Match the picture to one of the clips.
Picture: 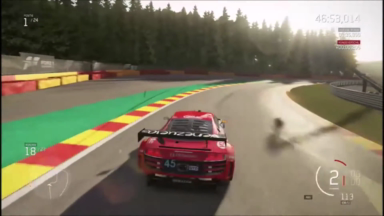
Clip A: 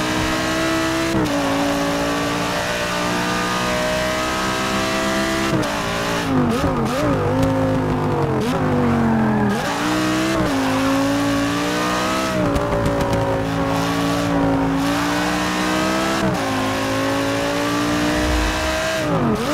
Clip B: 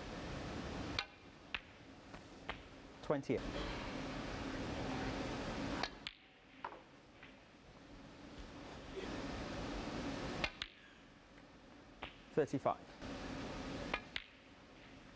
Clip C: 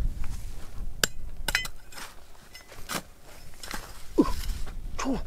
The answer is A